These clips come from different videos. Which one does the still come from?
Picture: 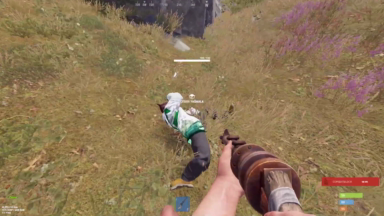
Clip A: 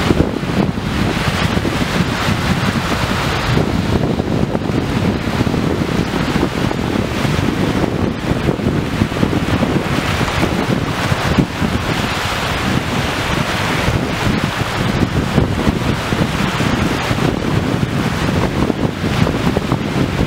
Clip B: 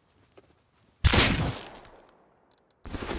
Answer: B